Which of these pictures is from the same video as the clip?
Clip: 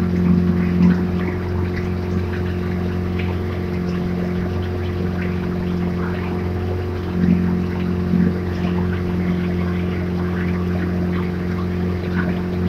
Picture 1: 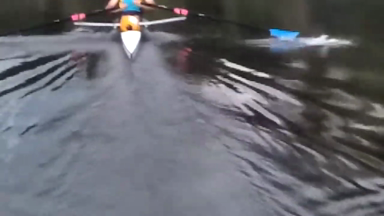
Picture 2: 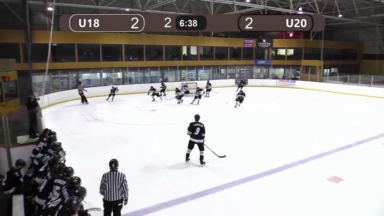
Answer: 1